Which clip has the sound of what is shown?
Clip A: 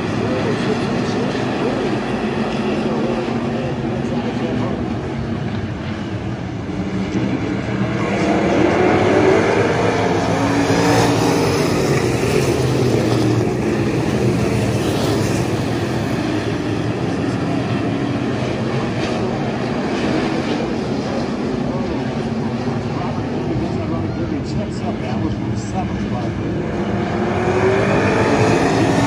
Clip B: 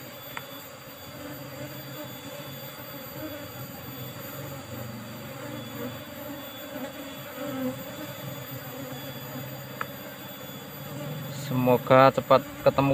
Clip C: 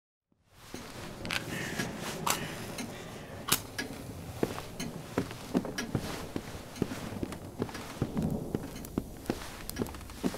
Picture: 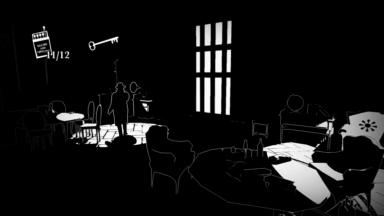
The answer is C